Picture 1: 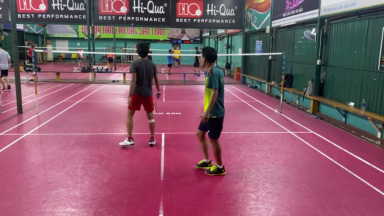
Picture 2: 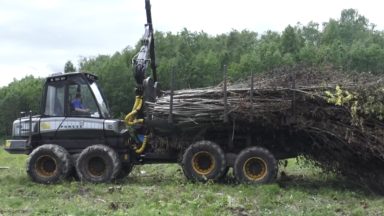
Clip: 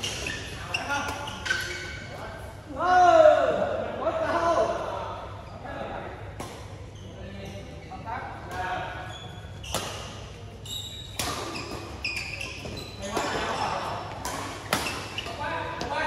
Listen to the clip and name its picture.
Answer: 1